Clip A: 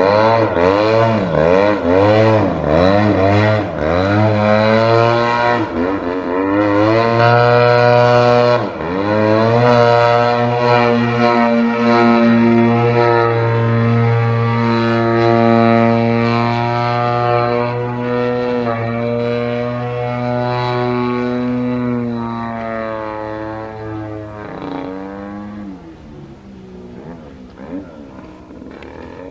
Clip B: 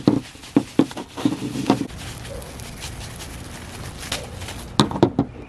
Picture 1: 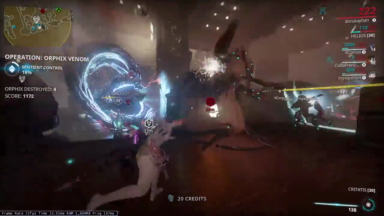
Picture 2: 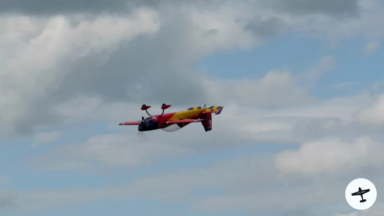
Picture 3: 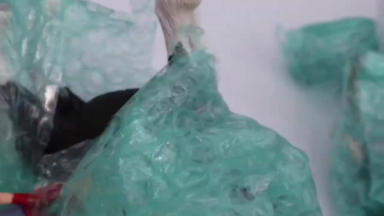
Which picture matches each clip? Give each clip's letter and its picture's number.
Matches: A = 2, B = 3